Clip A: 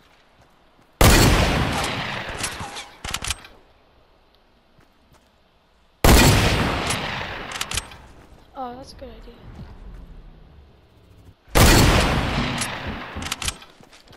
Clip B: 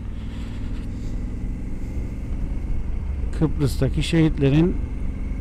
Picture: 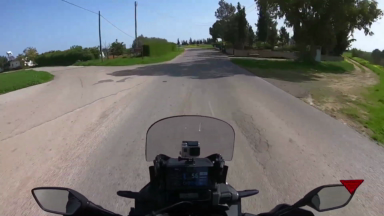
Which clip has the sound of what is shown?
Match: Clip B